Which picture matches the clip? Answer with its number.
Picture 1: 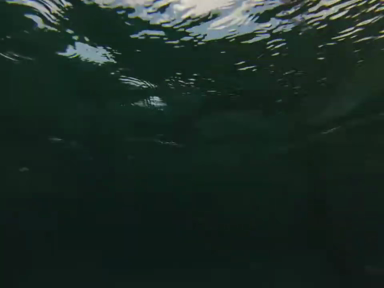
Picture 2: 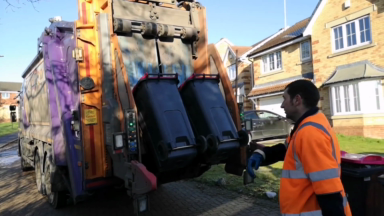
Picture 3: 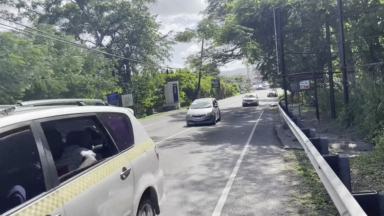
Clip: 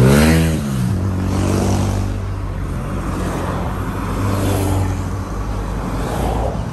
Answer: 3